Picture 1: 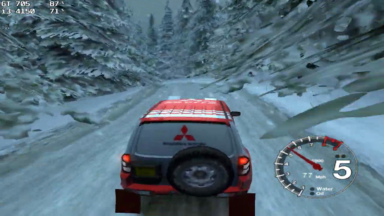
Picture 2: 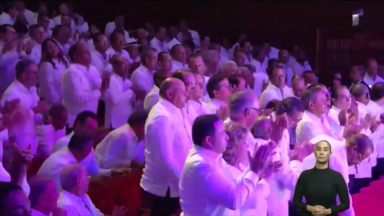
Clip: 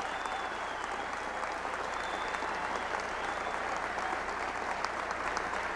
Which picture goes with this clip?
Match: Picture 2